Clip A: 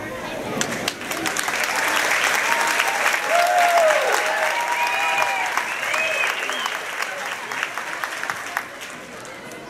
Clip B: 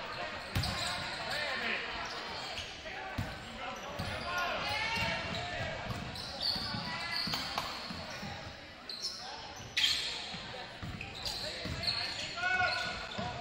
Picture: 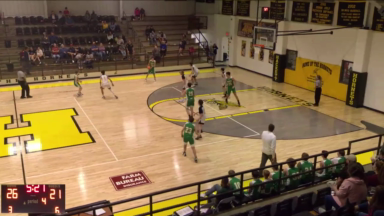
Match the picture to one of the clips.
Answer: B